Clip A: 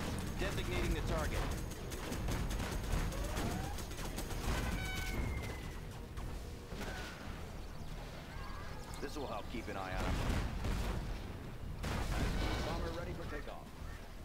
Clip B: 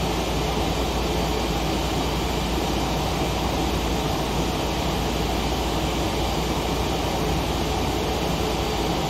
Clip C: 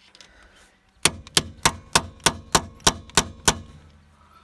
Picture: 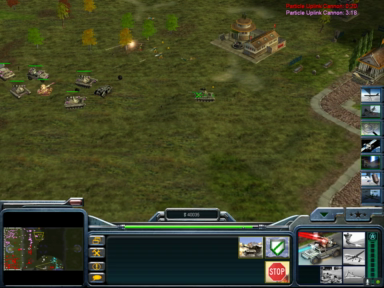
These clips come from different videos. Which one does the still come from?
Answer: A